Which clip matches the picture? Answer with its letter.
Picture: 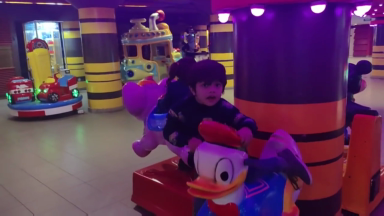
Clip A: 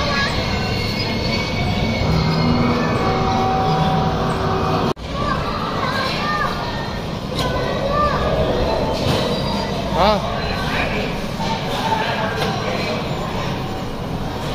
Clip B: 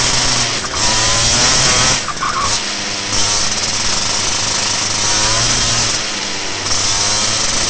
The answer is A